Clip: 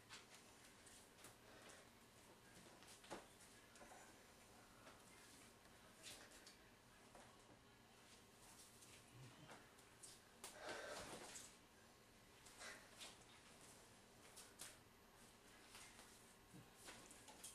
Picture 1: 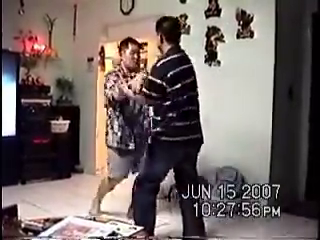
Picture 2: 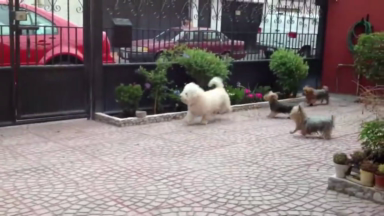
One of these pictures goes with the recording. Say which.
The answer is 1